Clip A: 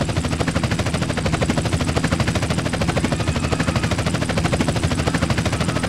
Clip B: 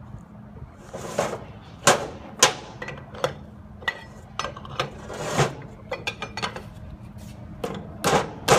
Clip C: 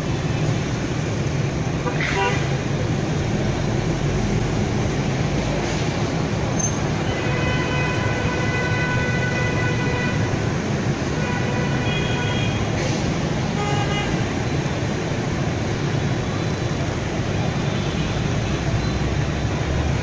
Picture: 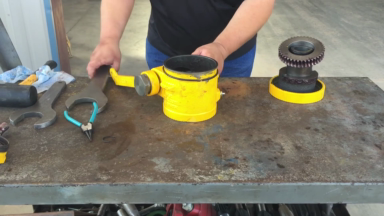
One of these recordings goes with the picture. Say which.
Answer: B